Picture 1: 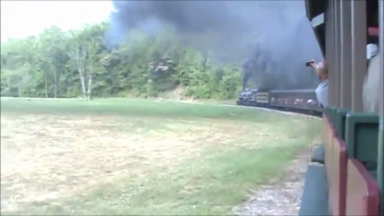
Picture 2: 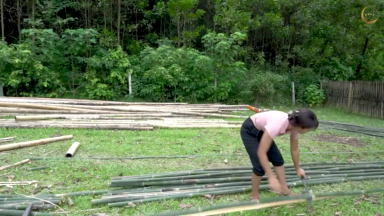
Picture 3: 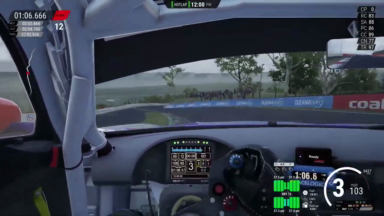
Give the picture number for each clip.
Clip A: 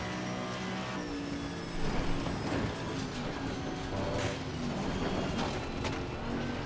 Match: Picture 3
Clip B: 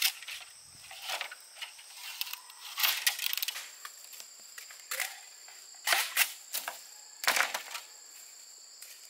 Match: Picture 2